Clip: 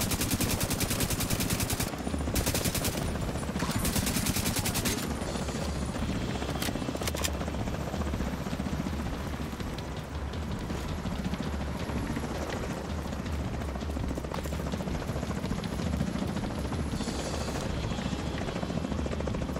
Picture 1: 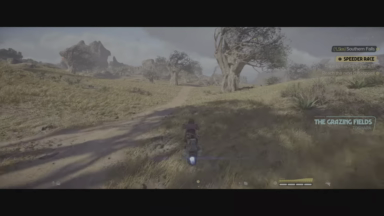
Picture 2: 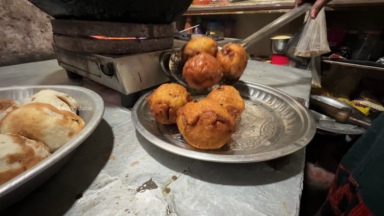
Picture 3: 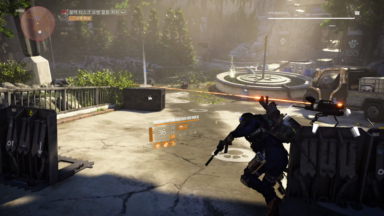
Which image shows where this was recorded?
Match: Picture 3